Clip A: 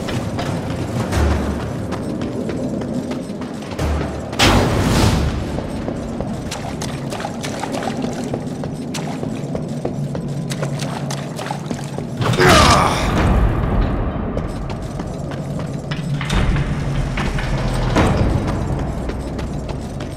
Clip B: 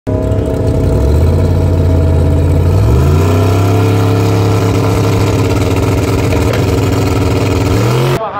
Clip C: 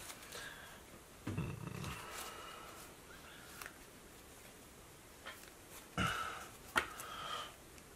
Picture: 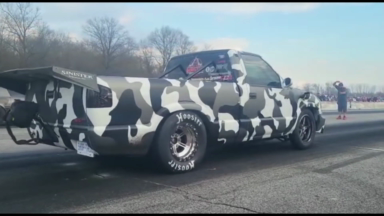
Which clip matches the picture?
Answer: B